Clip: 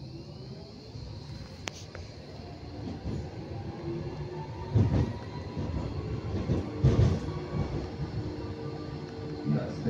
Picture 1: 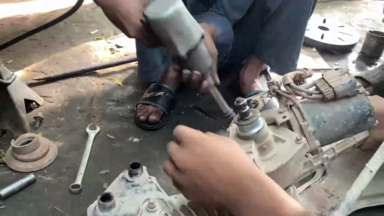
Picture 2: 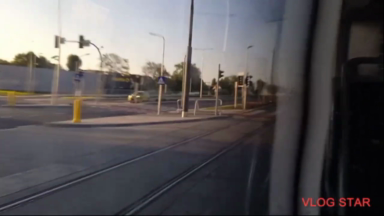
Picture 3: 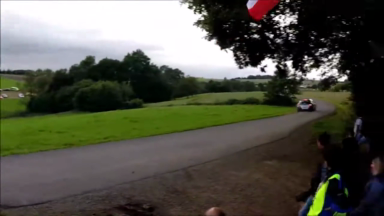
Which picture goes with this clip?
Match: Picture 2